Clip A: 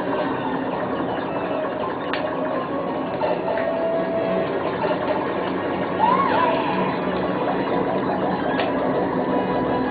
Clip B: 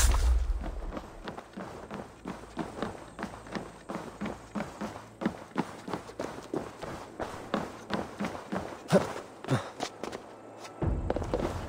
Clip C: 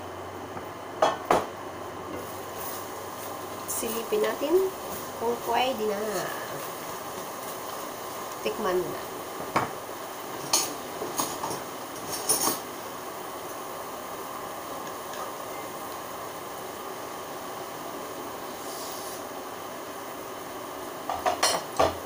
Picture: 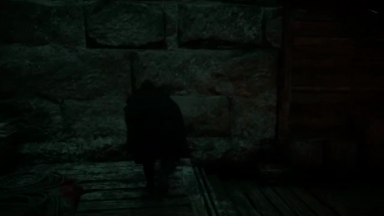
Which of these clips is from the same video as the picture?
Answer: B